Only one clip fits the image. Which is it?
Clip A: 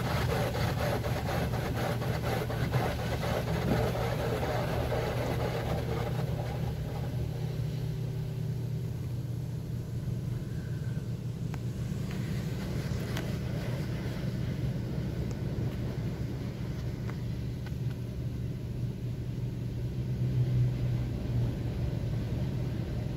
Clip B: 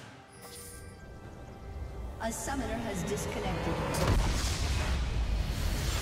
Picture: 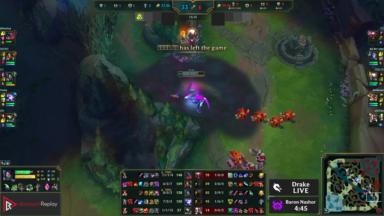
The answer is B